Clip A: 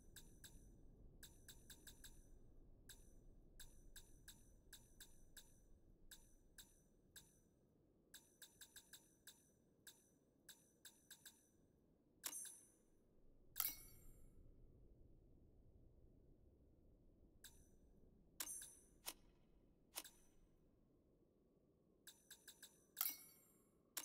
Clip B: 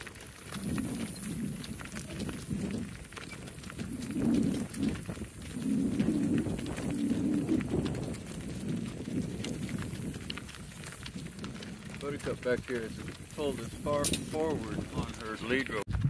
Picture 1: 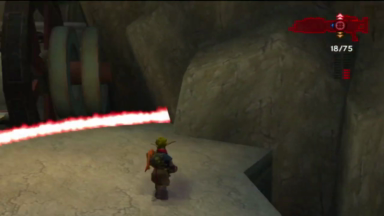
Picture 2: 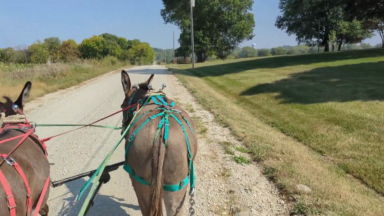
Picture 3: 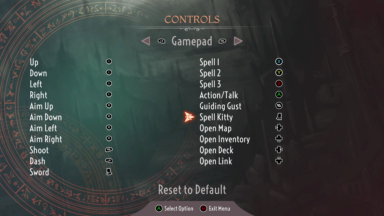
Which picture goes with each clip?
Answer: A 3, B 2